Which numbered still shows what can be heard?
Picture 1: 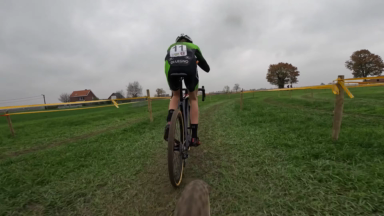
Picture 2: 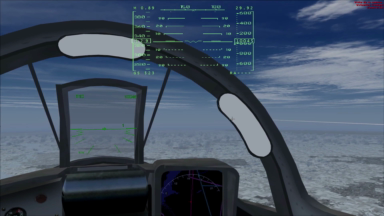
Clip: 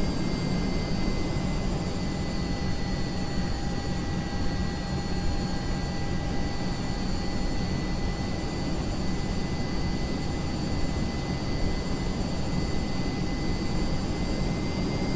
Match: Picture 2